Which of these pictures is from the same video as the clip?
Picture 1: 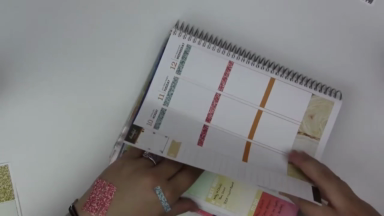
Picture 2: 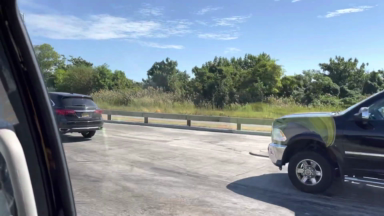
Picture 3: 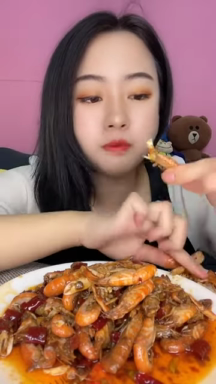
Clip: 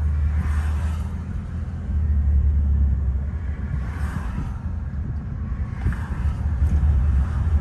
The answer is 2